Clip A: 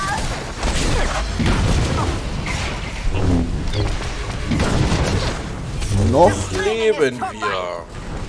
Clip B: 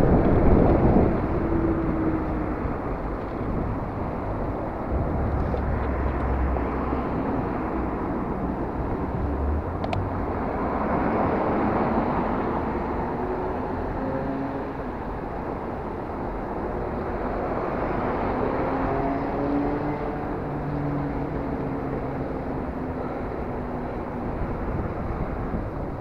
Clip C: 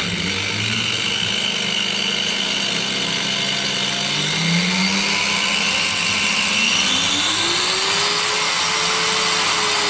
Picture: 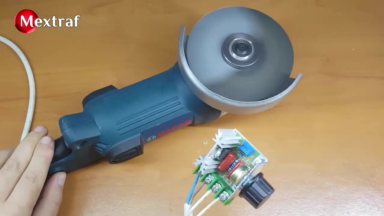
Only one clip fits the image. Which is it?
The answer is C